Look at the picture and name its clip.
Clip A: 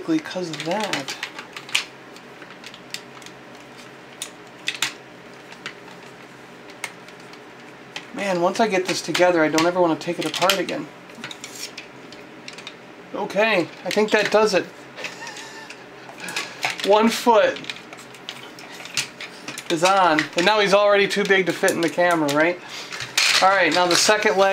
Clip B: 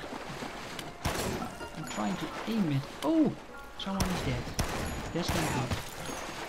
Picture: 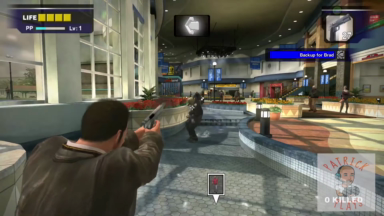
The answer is B